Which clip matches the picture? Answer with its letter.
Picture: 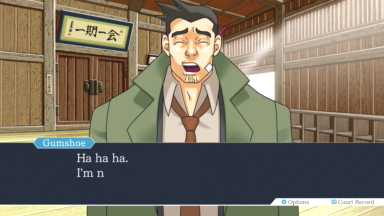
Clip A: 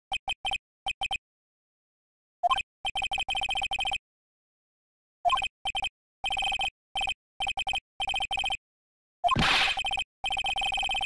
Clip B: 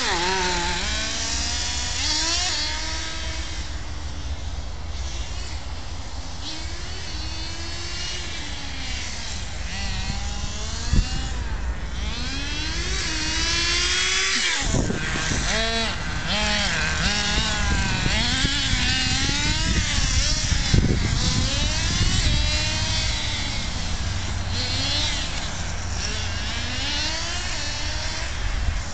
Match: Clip A